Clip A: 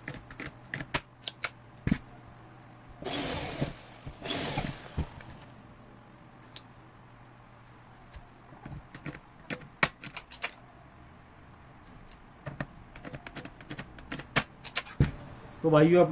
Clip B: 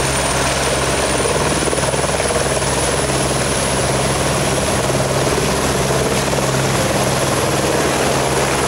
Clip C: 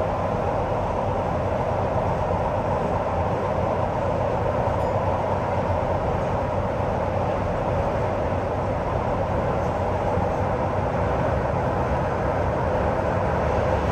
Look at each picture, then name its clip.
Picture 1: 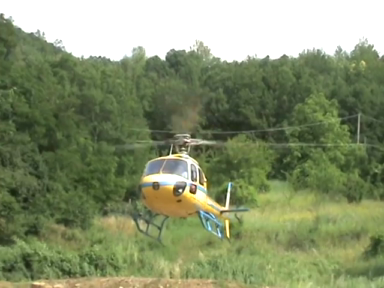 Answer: B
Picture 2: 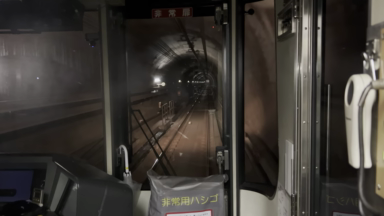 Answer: C